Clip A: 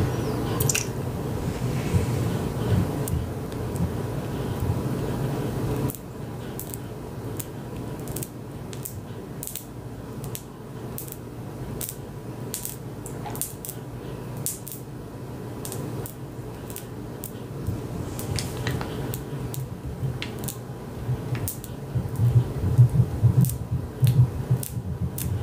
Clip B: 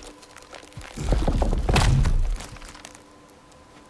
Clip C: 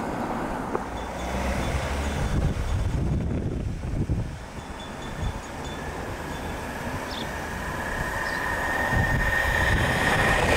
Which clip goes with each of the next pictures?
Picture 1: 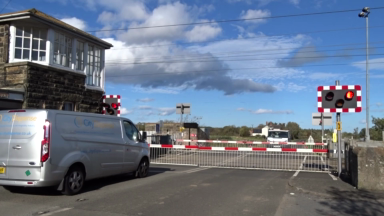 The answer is C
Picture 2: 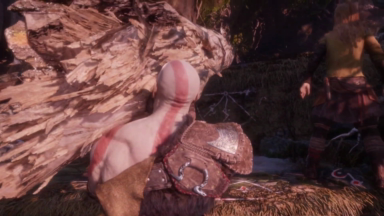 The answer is B